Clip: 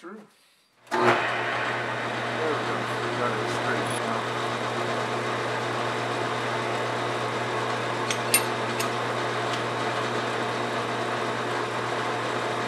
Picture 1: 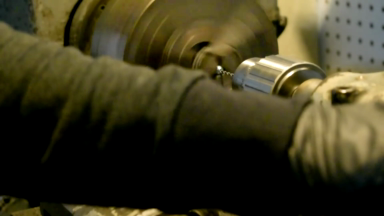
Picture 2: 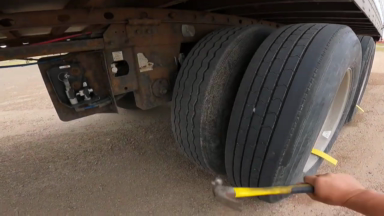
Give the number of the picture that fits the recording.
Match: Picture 1